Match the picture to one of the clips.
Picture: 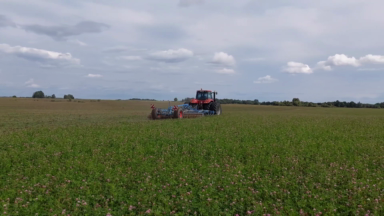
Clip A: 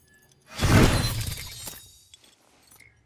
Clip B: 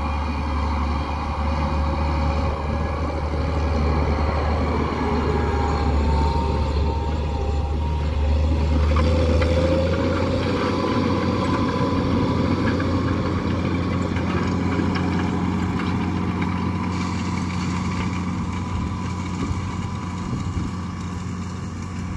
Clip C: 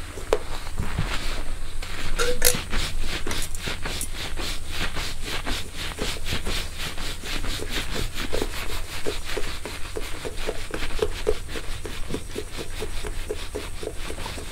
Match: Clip B